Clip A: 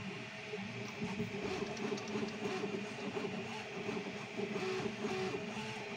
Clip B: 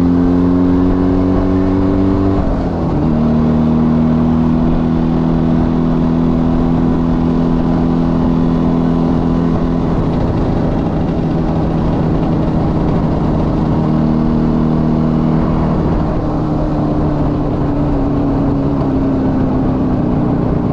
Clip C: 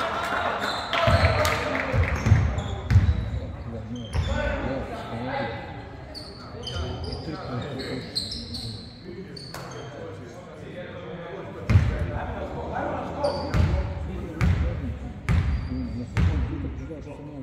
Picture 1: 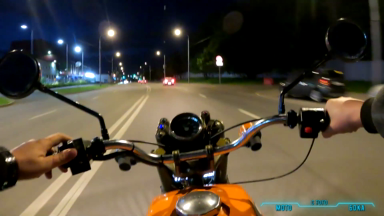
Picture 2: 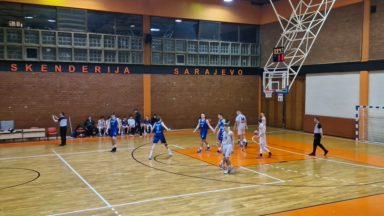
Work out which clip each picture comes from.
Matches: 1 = B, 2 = C